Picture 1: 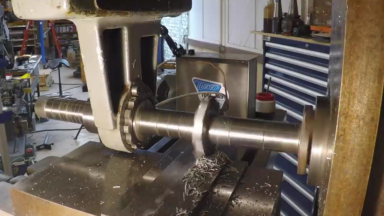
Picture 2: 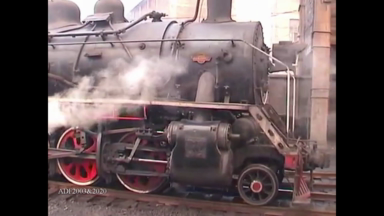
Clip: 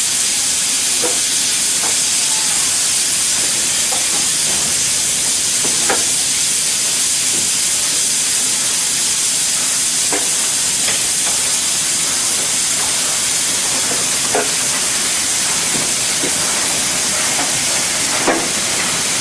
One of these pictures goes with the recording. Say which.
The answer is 2